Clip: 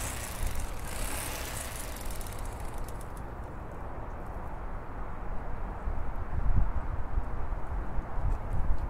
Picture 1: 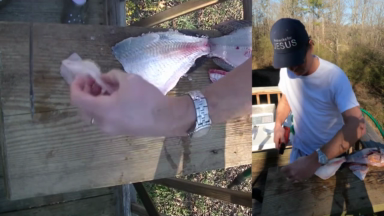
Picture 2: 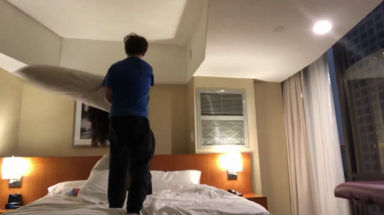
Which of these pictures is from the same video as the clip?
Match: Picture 1